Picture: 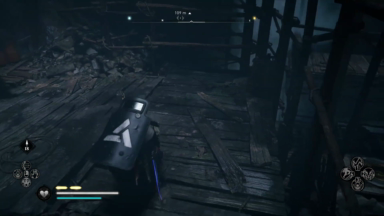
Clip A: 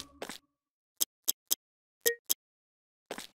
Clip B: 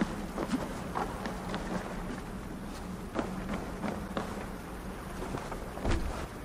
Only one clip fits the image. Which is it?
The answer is B